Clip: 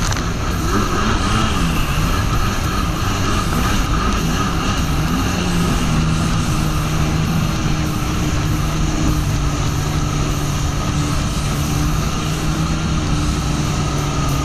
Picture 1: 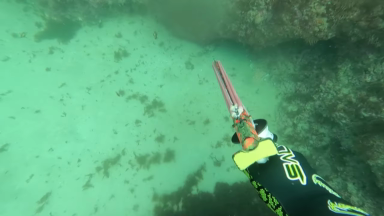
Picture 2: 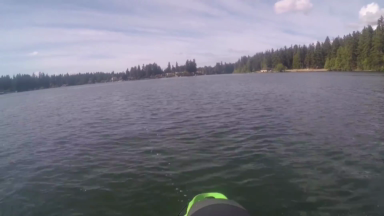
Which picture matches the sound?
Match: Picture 2